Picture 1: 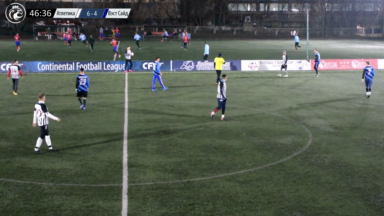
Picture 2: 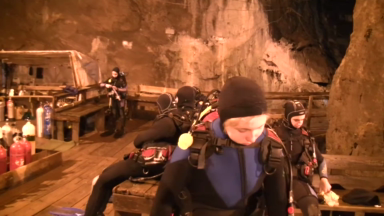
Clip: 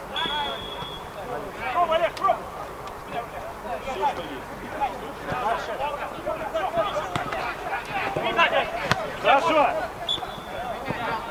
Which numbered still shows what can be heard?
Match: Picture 1